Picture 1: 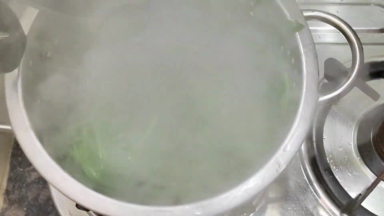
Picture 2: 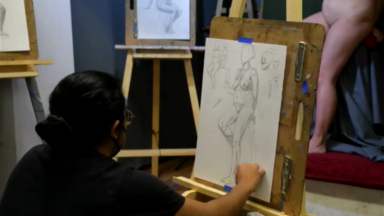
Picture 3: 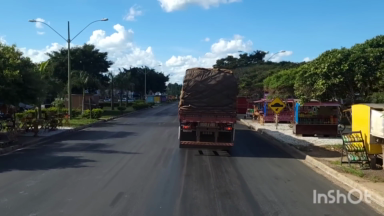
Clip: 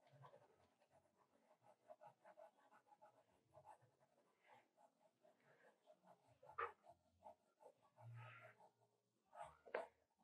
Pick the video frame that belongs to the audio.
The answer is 2